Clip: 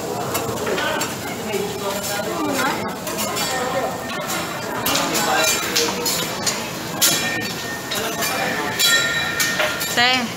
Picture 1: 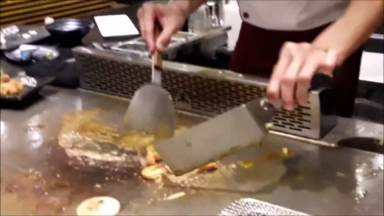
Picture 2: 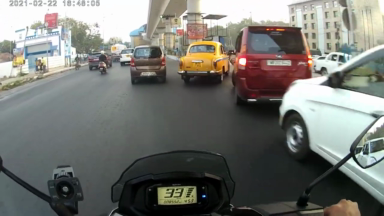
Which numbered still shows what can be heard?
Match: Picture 1